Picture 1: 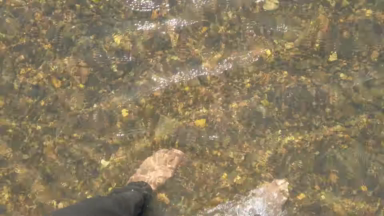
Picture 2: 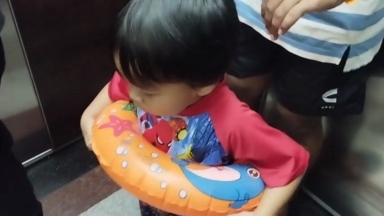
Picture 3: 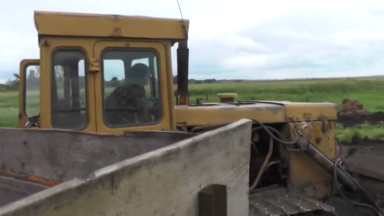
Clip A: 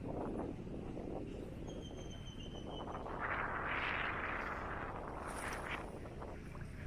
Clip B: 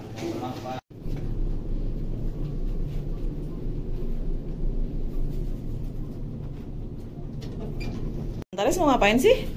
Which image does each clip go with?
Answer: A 1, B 2